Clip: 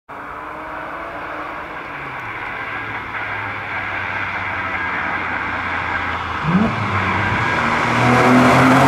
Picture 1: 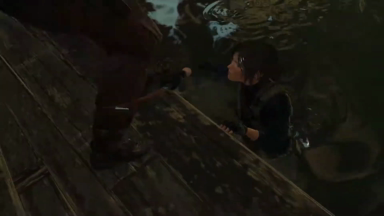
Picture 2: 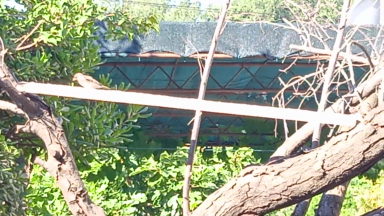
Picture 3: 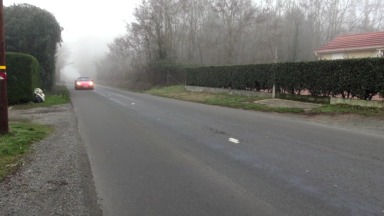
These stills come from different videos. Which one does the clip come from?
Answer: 3